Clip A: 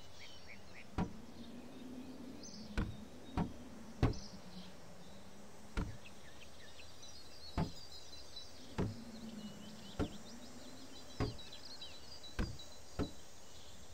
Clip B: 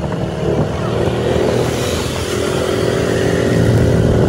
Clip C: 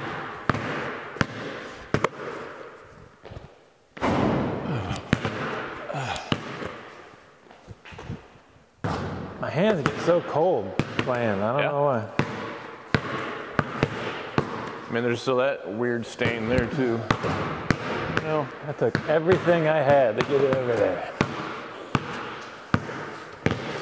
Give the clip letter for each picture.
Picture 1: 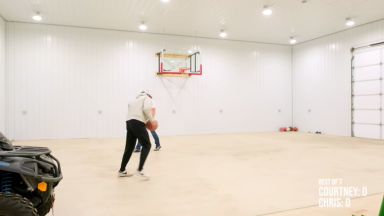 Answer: C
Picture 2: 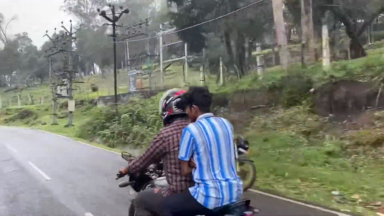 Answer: B